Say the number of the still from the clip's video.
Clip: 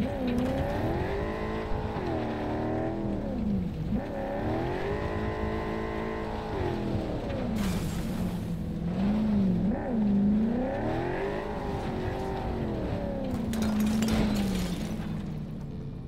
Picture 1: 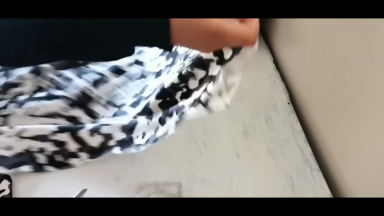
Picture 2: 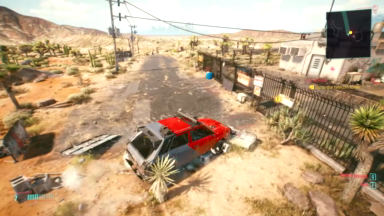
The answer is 2